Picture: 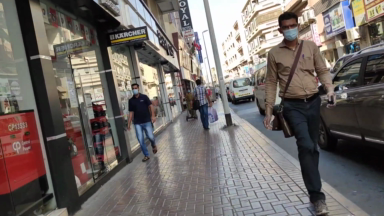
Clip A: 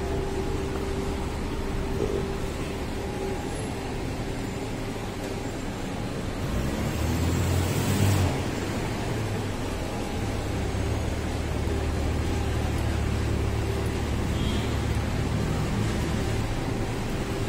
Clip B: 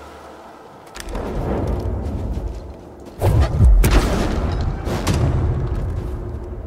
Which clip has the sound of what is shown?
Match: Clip A